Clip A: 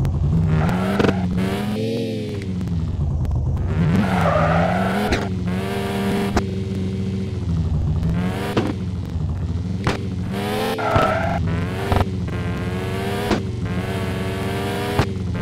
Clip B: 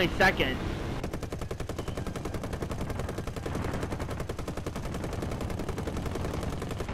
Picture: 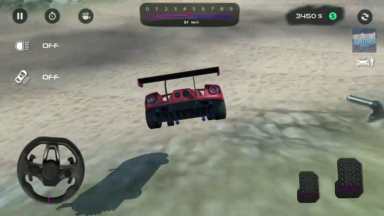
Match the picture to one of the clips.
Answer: A